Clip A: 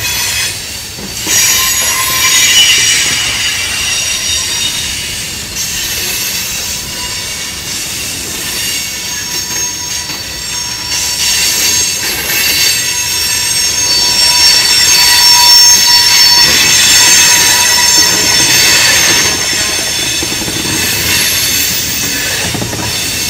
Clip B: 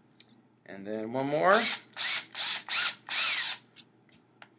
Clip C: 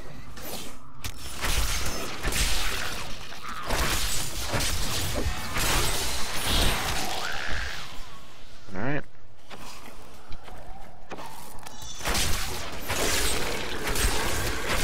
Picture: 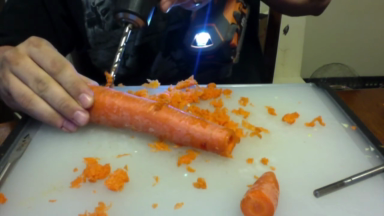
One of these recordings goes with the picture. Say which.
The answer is B